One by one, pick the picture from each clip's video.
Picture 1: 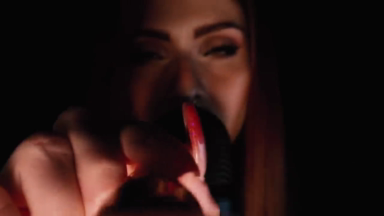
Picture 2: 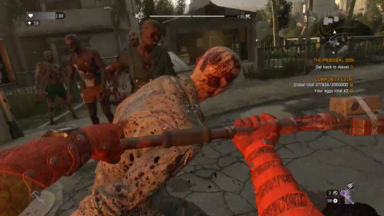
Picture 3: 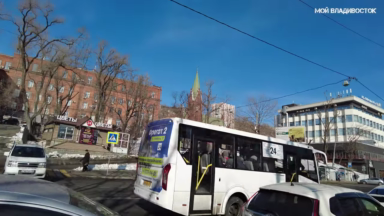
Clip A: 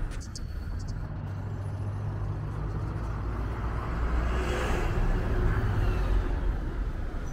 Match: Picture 3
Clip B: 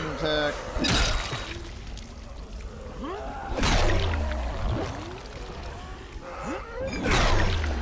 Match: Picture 2